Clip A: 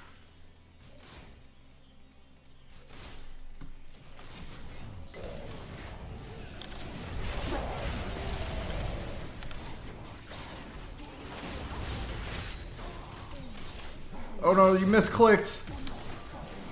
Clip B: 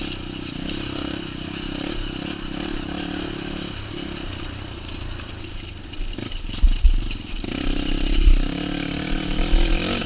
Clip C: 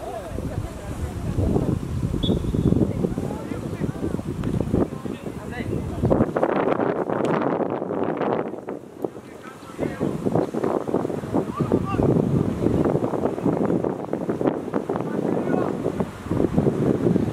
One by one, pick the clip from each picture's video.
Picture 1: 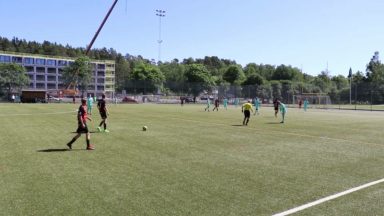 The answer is C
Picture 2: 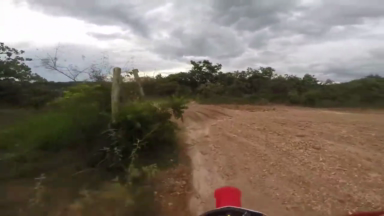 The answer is B